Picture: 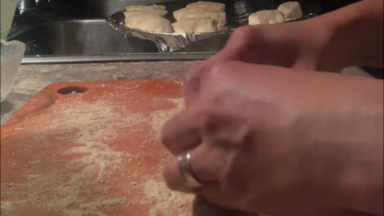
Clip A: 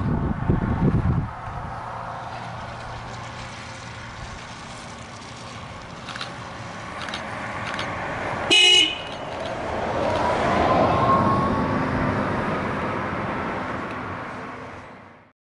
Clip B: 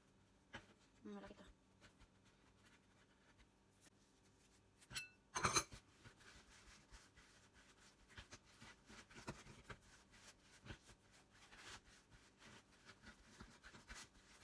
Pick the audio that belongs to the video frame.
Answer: B